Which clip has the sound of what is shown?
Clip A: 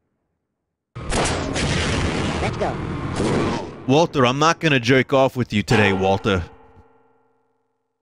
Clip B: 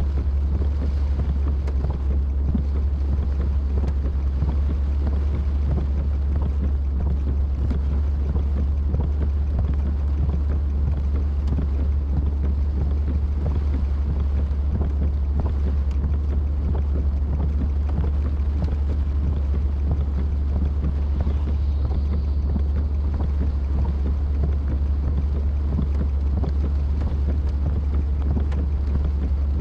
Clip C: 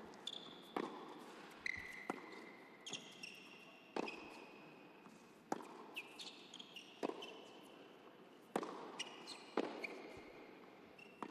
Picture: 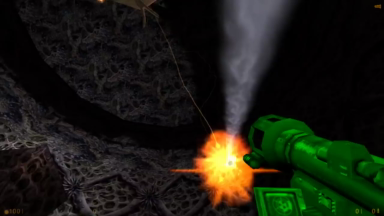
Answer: A